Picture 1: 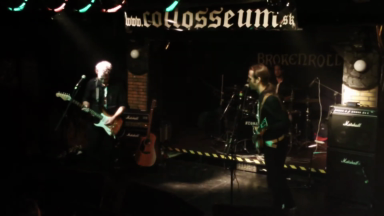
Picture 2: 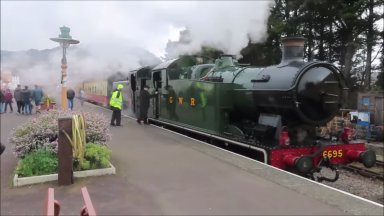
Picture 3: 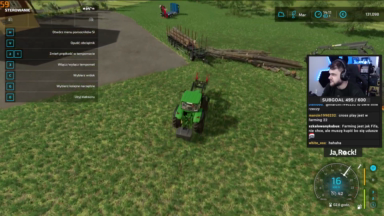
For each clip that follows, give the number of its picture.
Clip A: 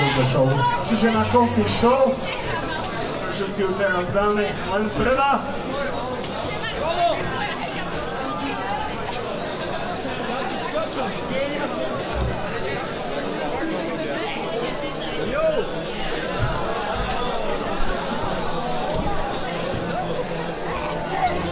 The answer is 1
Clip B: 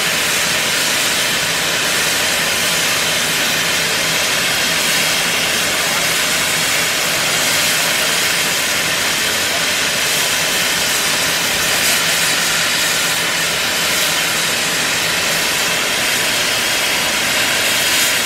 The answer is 2